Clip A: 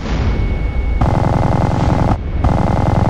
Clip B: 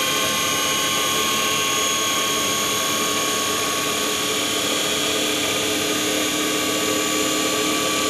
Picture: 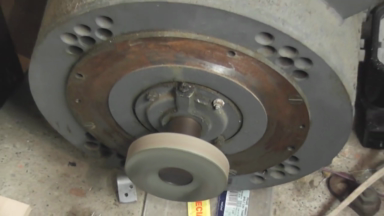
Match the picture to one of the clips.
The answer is B